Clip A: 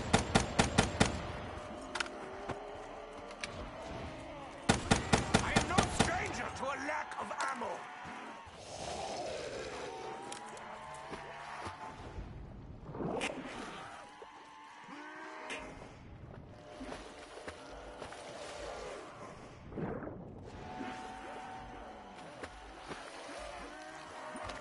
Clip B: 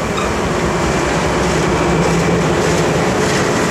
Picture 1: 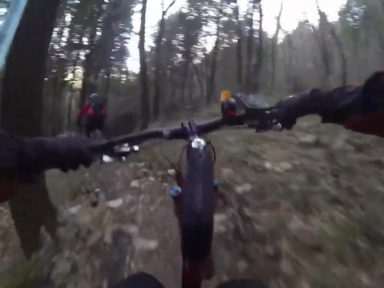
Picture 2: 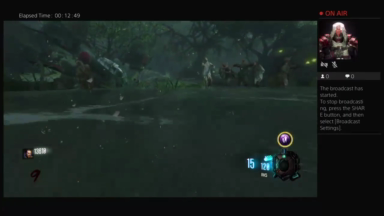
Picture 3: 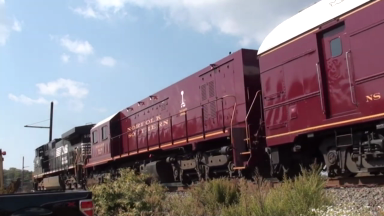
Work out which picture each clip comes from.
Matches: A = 2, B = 3